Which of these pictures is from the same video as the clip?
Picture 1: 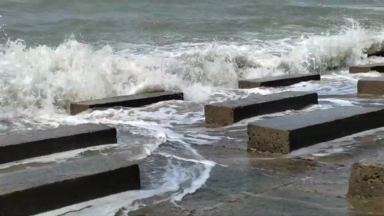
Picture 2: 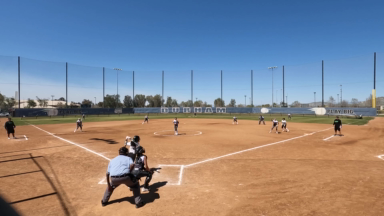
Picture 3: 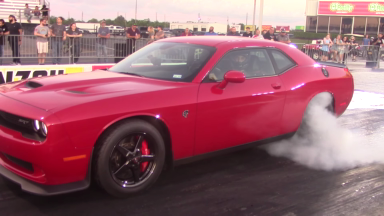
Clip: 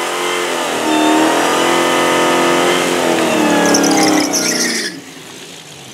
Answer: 3